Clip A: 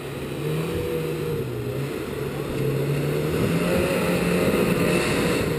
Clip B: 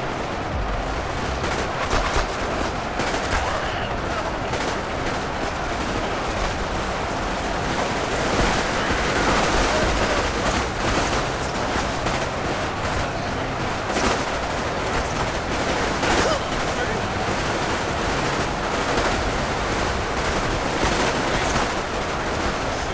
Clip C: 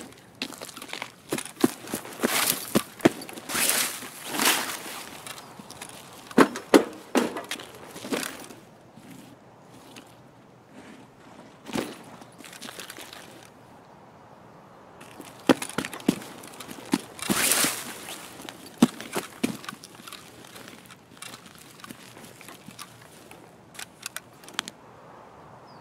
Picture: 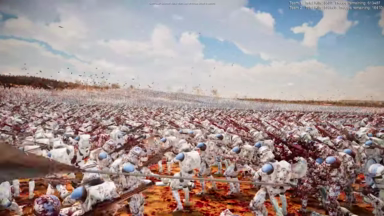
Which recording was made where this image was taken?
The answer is B